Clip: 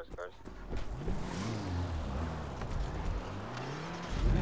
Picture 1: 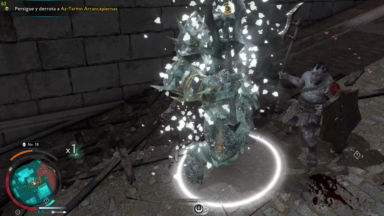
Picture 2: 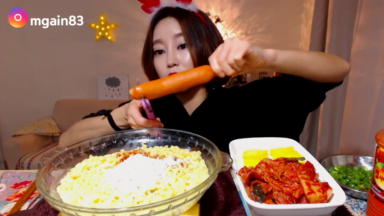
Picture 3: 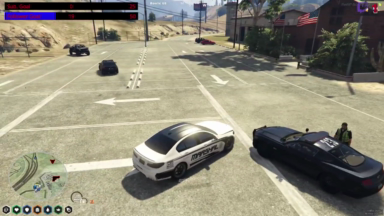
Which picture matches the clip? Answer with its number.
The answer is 3